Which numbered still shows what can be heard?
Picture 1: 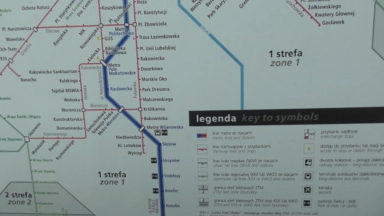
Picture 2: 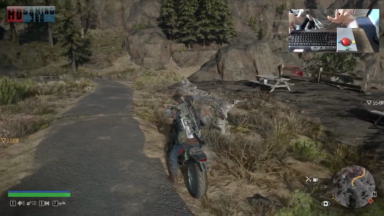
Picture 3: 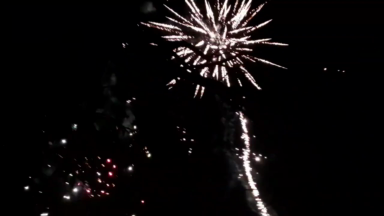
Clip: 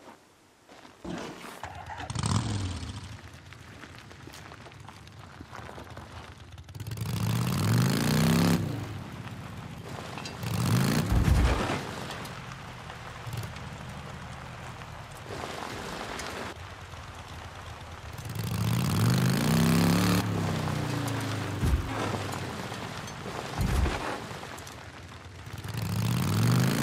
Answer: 2